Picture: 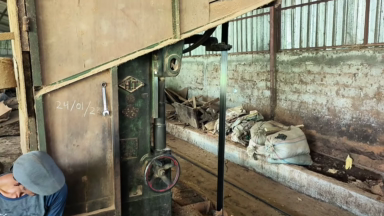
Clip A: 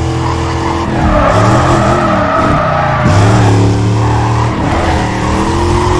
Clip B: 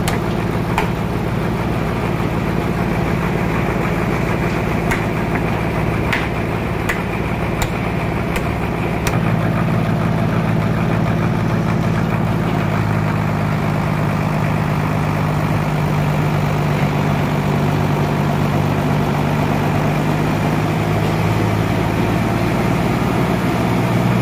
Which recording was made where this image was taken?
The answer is B